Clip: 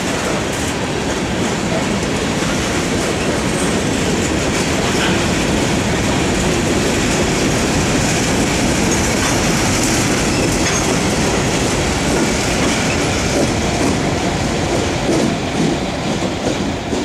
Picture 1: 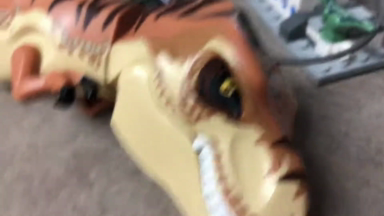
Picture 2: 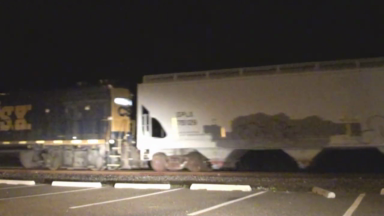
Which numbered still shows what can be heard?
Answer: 2